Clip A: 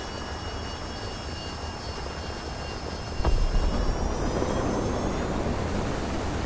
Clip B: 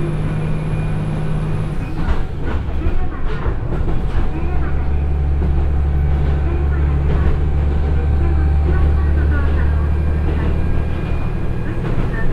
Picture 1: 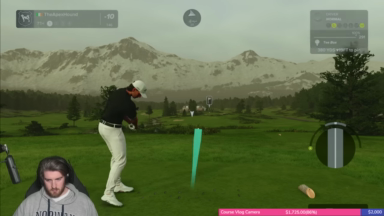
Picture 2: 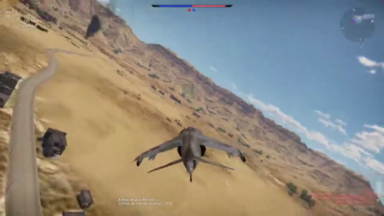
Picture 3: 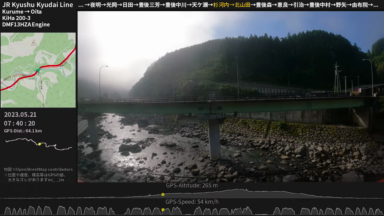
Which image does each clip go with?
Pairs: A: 2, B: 3